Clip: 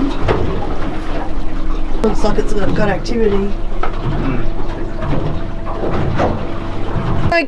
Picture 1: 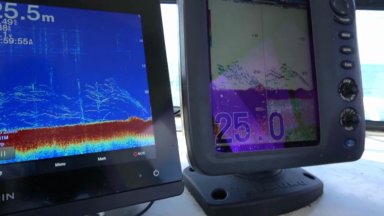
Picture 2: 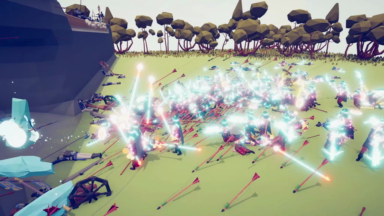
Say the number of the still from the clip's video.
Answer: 1